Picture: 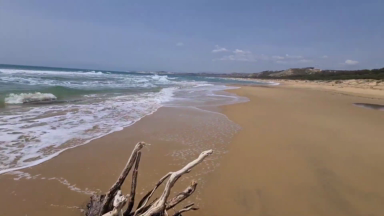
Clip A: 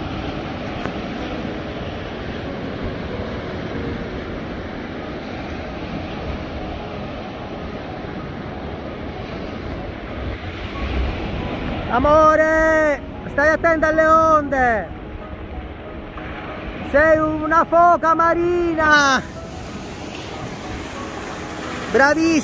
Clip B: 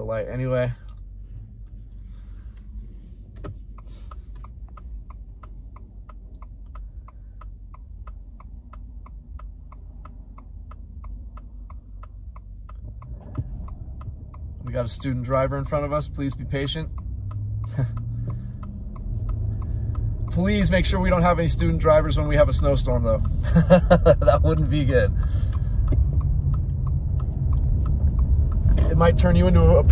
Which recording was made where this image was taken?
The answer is A